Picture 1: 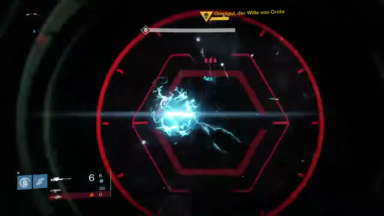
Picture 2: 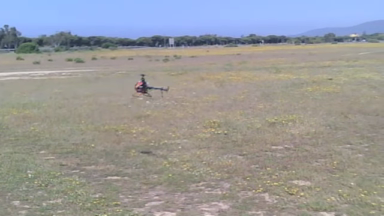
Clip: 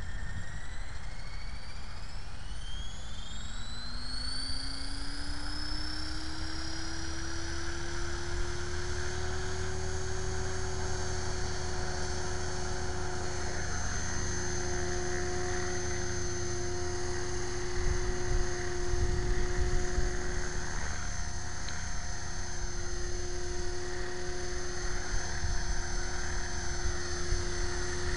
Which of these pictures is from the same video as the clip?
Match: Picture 2